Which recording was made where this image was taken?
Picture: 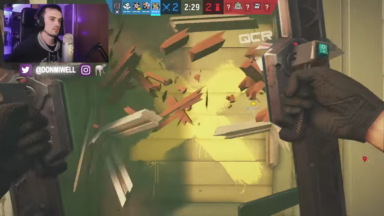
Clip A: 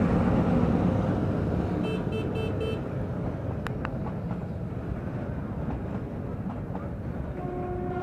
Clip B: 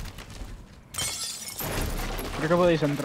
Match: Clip B